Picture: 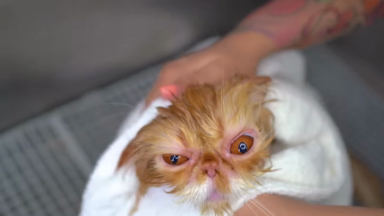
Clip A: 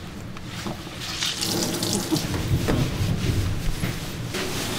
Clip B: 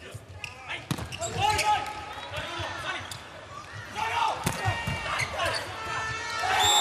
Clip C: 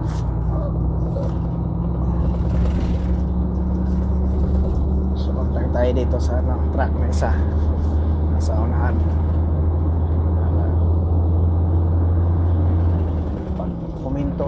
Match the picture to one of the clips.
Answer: A